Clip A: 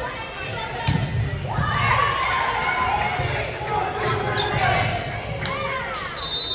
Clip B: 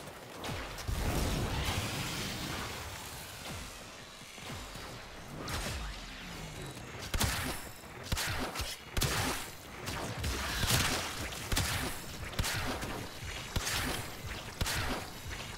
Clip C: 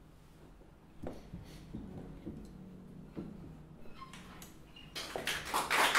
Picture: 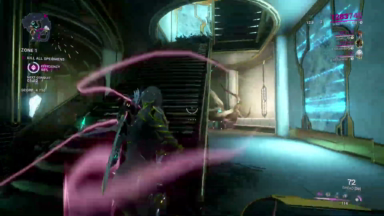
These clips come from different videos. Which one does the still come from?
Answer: B